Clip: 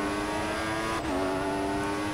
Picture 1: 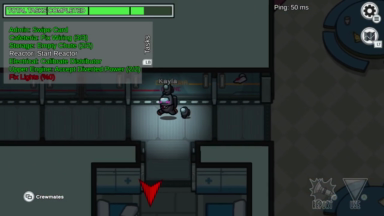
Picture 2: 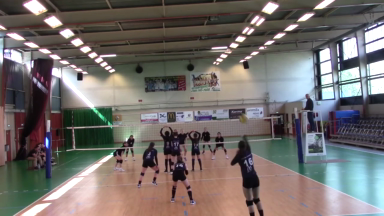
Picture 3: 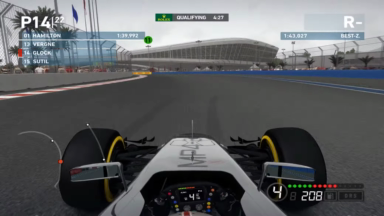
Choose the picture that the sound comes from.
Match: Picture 3